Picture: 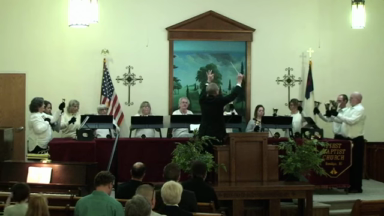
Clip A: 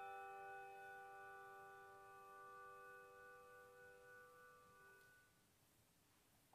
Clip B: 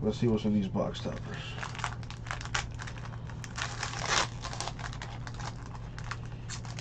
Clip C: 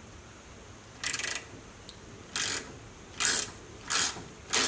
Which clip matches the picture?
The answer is A